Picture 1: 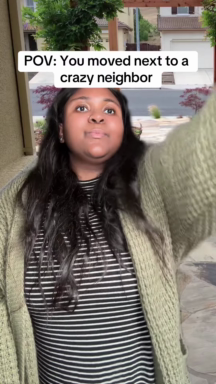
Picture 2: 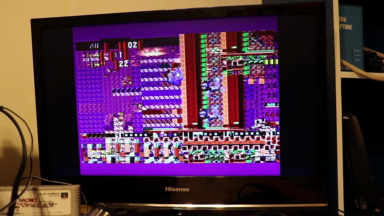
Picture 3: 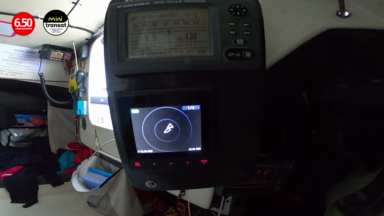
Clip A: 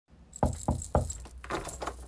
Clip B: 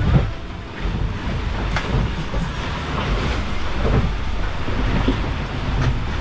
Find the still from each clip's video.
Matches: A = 1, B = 3